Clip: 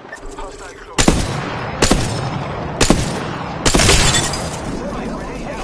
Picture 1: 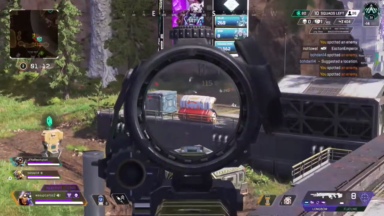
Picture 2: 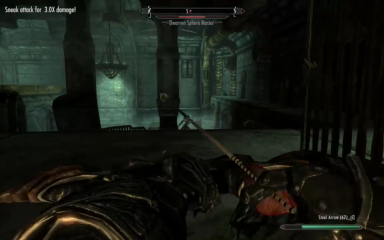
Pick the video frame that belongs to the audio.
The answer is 1